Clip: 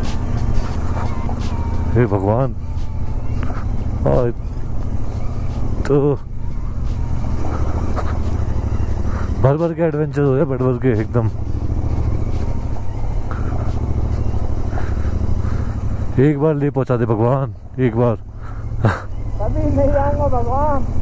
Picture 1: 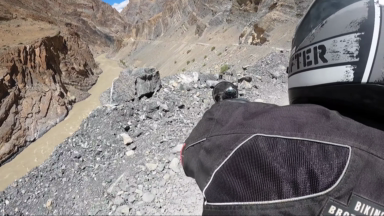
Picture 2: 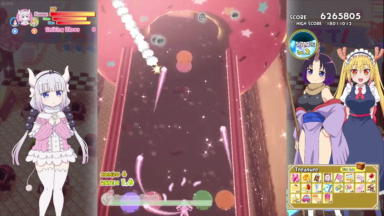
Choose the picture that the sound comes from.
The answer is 1